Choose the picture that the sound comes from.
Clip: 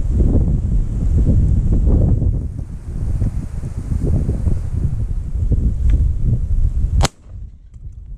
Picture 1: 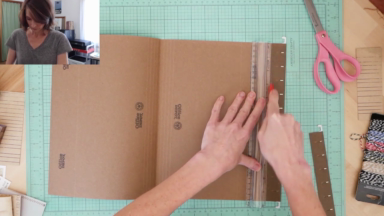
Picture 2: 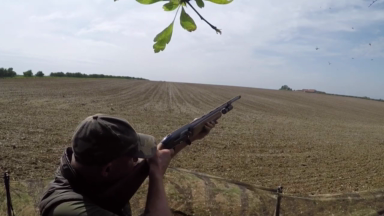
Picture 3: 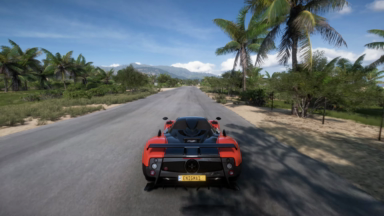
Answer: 2